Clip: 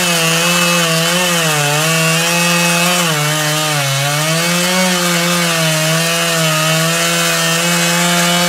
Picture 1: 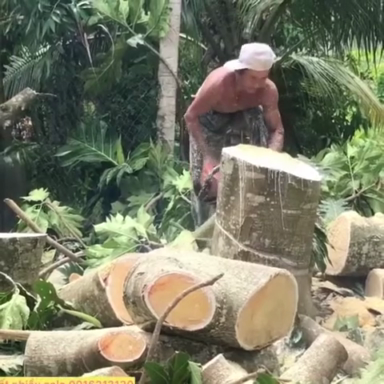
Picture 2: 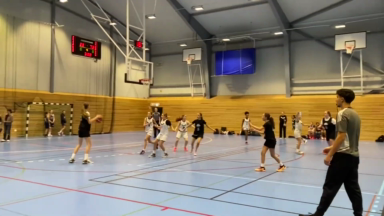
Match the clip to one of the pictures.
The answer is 1